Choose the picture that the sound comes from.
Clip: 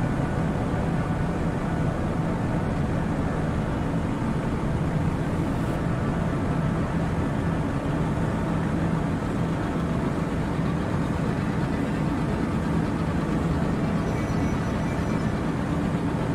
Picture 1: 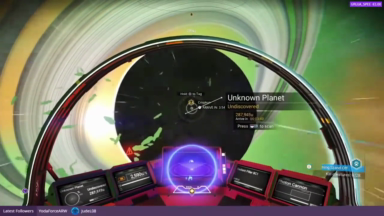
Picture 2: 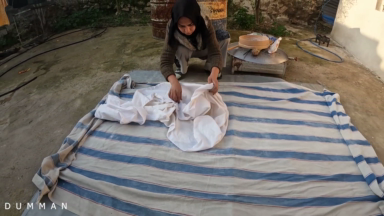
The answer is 1